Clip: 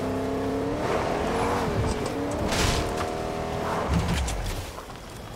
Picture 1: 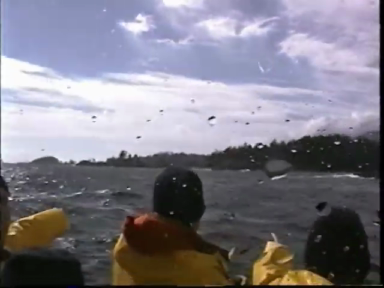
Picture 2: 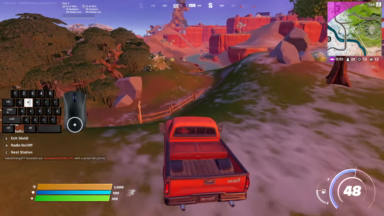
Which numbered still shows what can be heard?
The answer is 2